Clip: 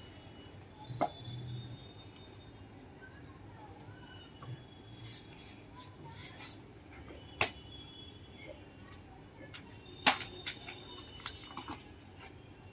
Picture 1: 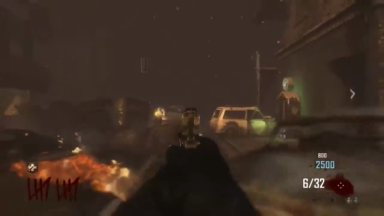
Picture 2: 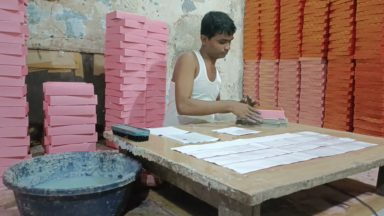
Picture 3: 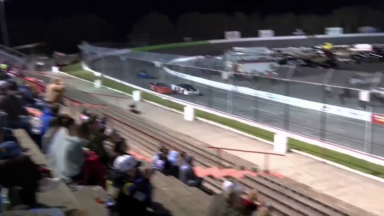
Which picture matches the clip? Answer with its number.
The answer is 2